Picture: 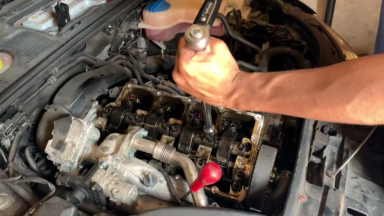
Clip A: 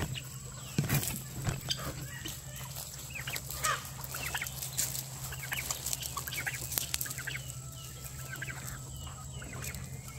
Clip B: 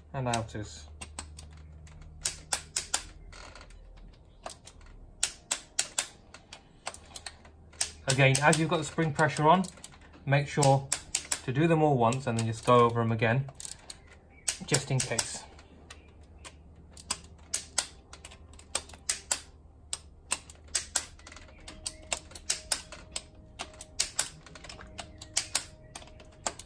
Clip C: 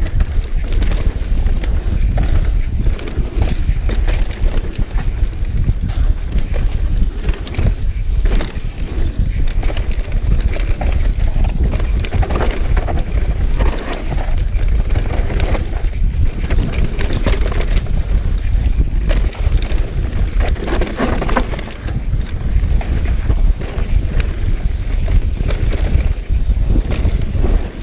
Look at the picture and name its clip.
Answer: B